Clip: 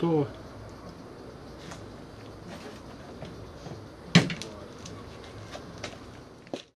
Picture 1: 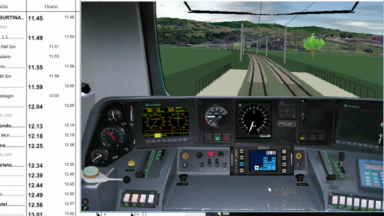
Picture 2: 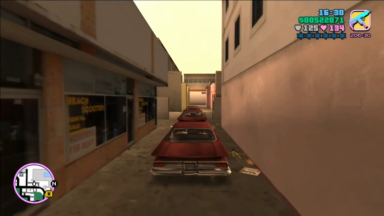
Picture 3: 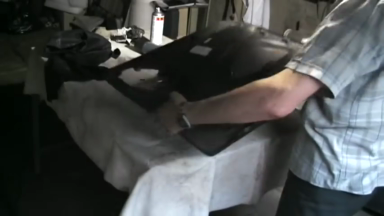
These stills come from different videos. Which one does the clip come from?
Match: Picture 3